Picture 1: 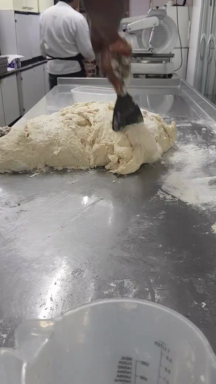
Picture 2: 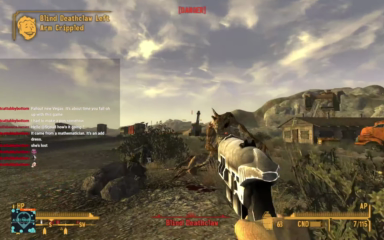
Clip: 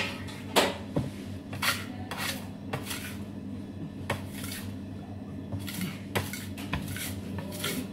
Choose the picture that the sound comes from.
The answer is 1